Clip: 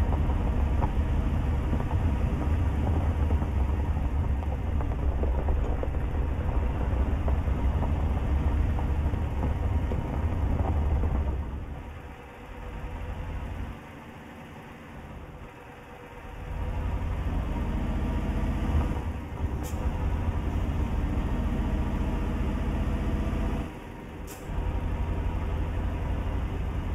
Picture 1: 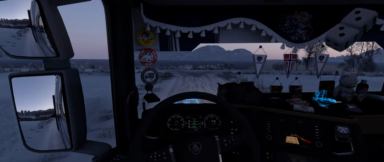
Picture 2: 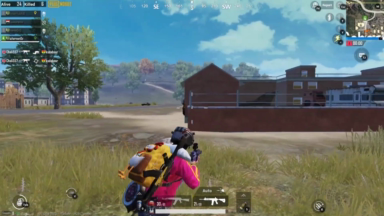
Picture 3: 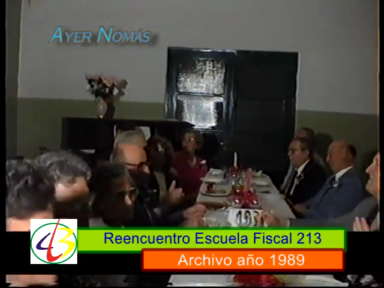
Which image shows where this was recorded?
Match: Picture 1